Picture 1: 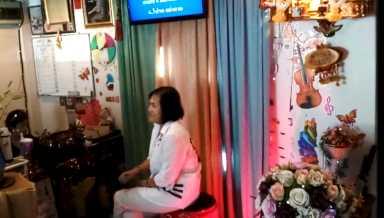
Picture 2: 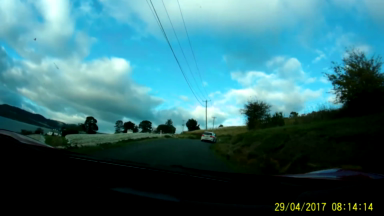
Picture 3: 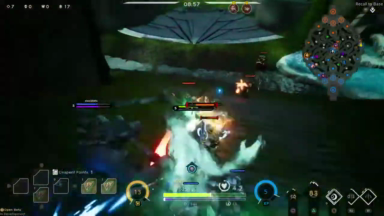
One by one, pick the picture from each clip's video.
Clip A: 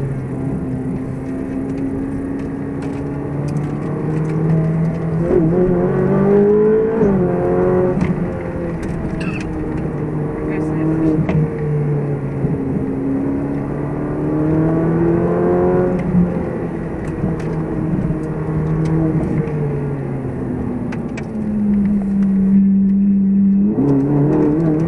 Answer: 2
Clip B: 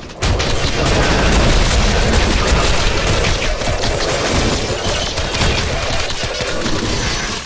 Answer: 3